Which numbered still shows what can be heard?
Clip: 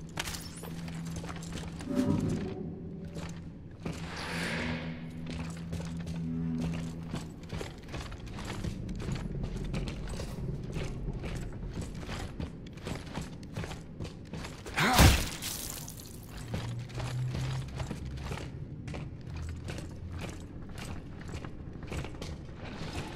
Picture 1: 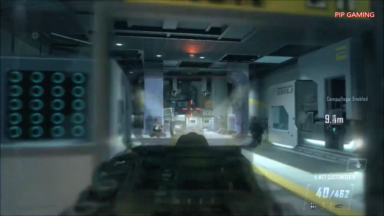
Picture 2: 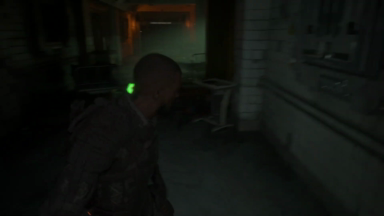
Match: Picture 2